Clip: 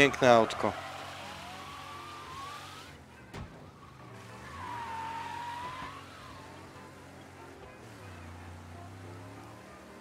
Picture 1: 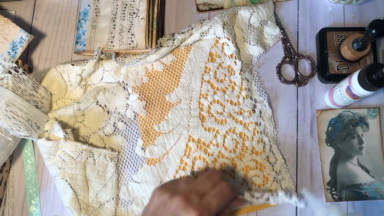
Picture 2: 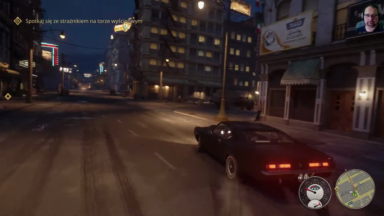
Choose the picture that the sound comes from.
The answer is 2